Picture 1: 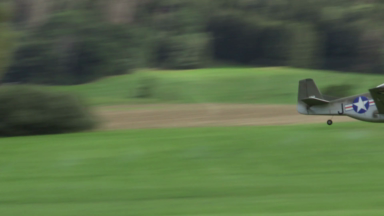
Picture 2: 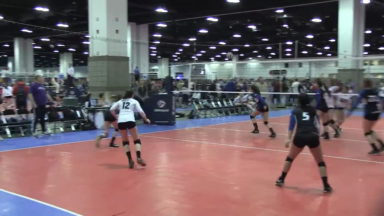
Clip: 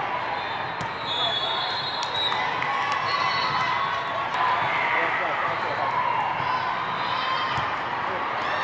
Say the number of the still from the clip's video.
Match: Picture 2